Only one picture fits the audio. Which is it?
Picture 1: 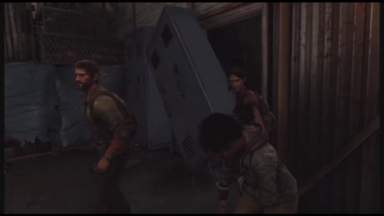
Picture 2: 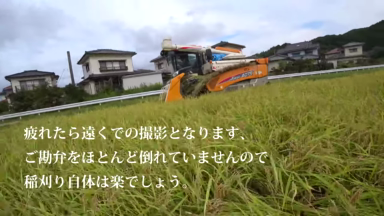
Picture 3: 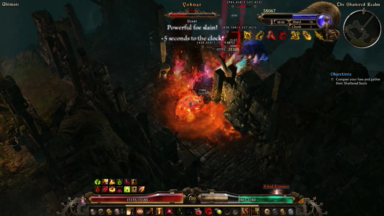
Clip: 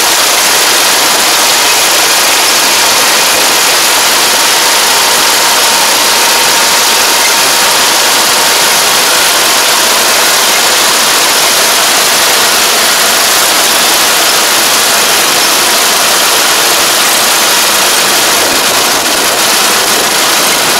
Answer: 2